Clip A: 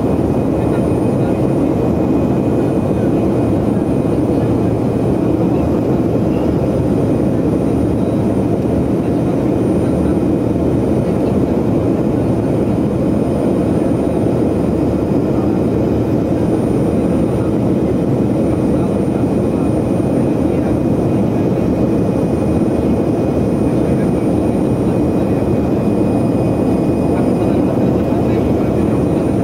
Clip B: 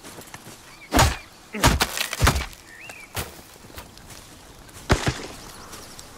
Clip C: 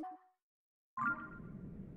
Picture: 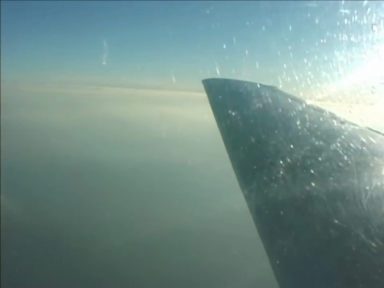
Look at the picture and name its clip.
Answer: A